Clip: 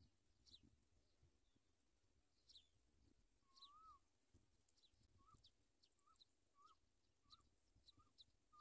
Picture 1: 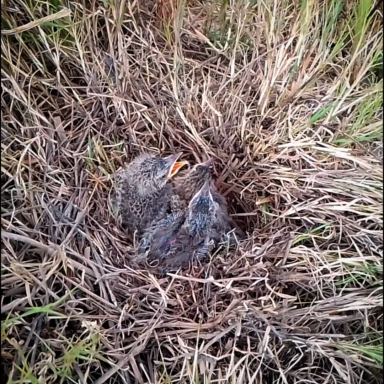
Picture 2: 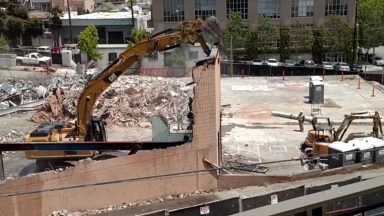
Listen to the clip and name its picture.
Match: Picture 1